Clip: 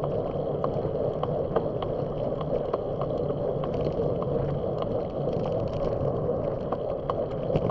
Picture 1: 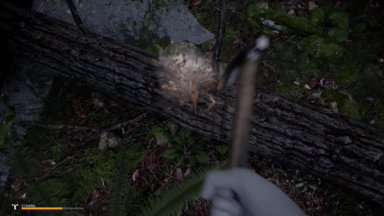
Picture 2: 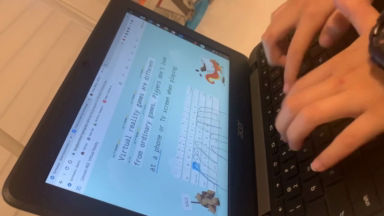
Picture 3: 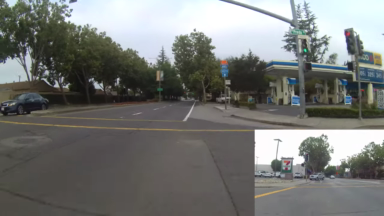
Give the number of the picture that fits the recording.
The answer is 3